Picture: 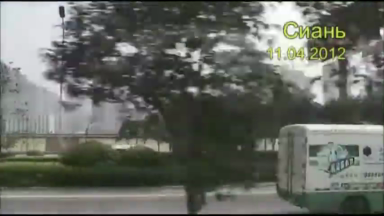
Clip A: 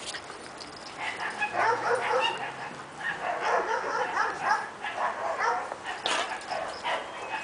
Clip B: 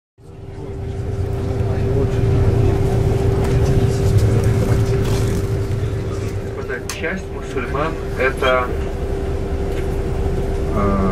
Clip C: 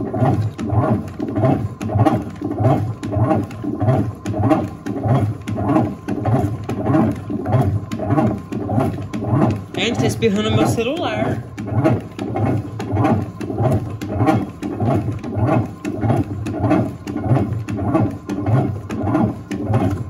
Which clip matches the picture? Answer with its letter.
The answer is B